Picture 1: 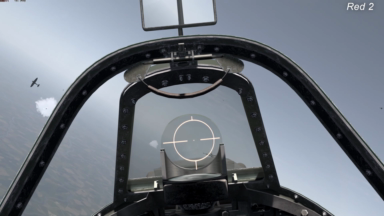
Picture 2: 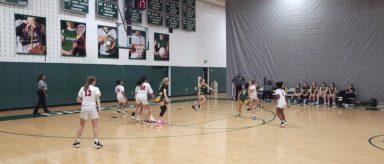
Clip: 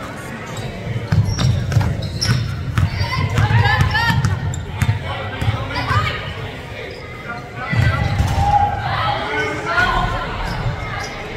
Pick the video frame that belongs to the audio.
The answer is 2